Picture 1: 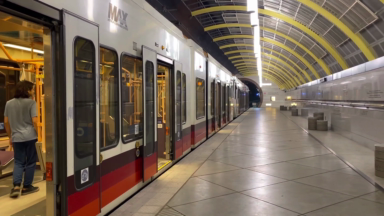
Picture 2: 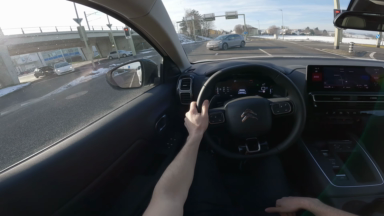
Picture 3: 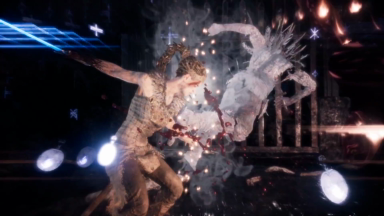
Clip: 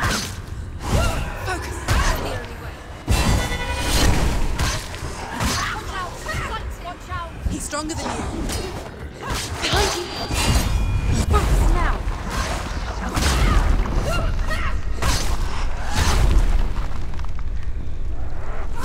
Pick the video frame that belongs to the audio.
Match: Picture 3